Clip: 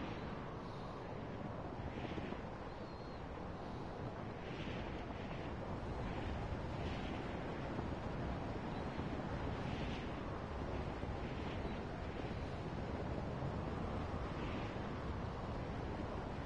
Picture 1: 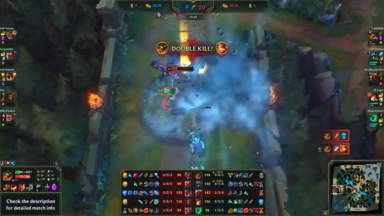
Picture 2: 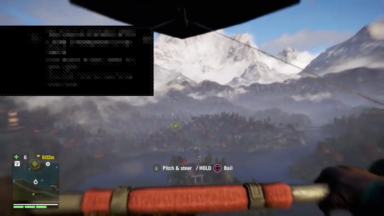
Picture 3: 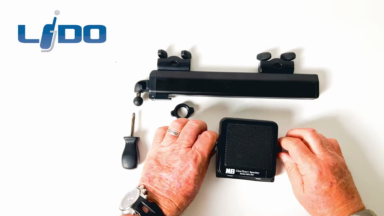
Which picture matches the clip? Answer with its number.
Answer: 2